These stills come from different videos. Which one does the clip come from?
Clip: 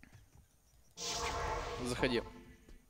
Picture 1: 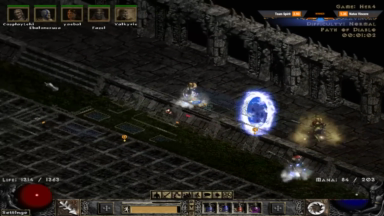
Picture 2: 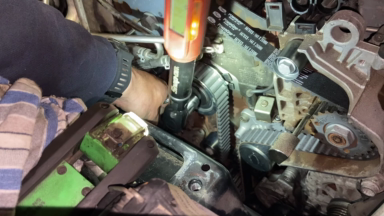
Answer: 1